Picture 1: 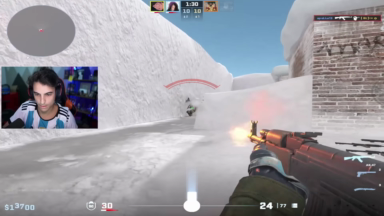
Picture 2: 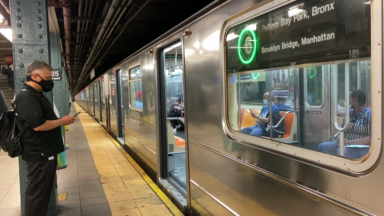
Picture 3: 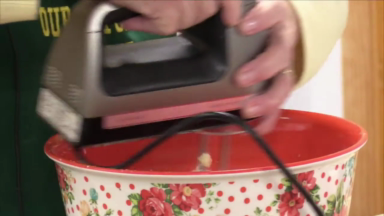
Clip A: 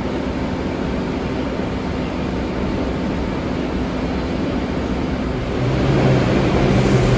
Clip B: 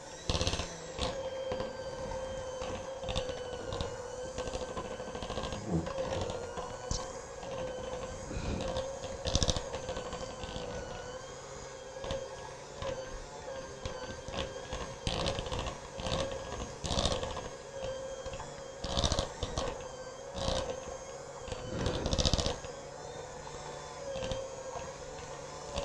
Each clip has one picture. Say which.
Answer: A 2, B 3